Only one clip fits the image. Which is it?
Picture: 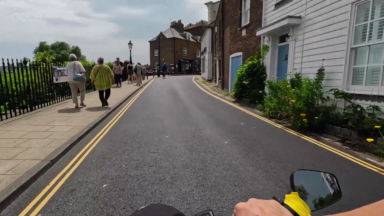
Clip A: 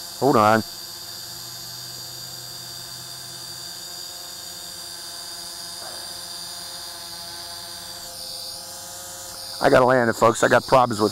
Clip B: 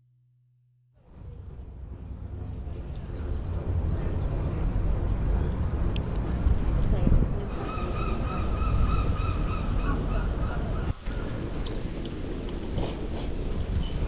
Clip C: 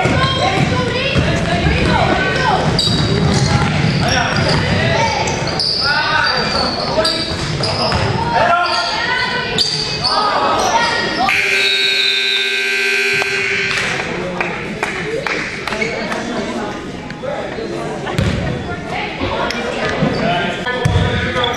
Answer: B